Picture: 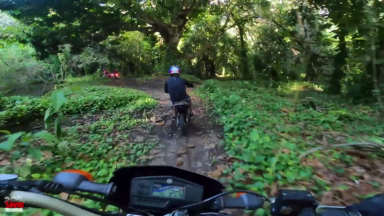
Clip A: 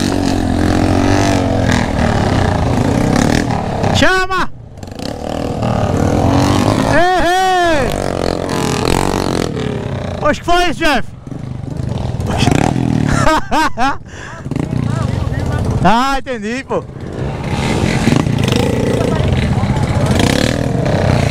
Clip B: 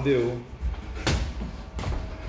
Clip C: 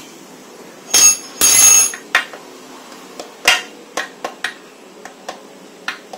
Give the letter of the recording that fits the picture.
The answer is A